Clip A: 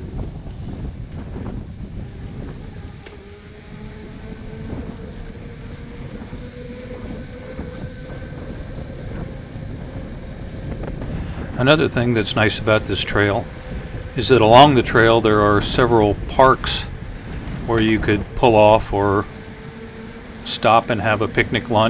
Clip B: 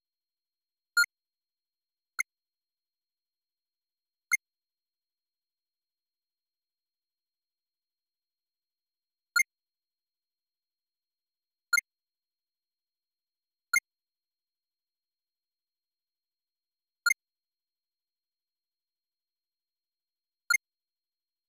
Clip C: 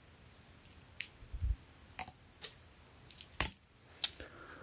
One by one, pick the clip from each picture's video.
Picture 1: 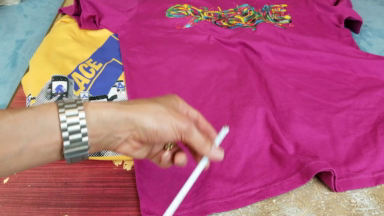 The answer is C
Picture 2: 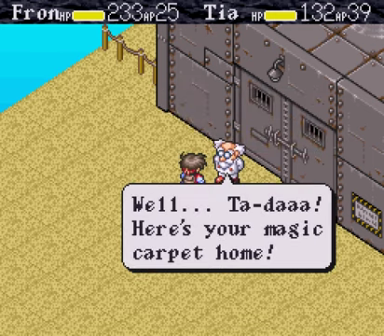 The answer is B